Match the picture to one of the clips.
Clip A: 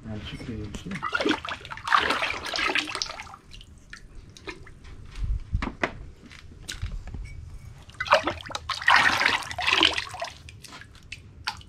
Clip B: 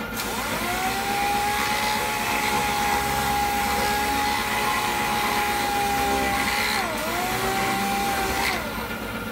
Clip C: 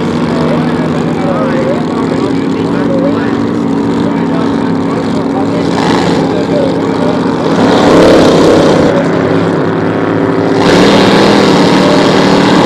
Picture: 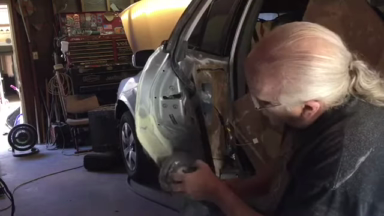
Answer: B